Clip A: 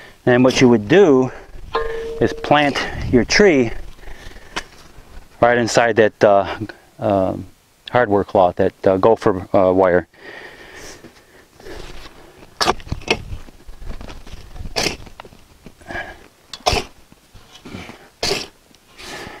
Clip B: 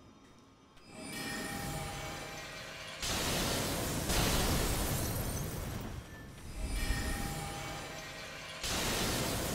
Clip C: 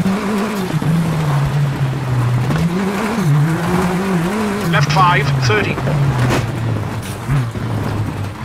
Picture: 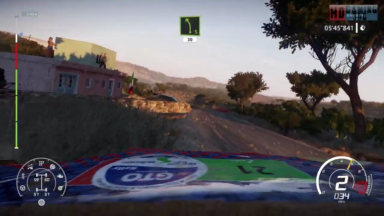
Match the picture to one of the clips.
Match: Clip C